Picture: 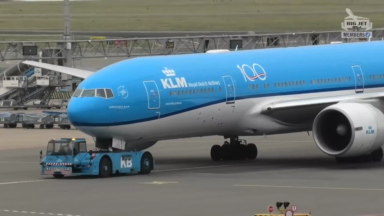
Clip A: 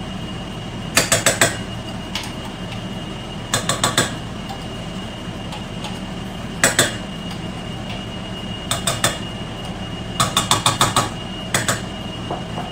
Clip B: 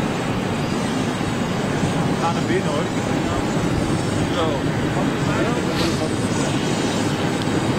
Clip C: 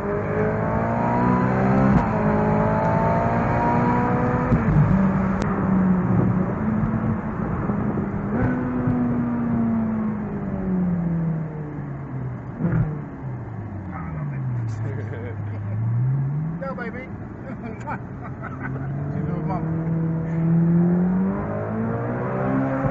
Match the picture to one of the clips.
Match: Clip B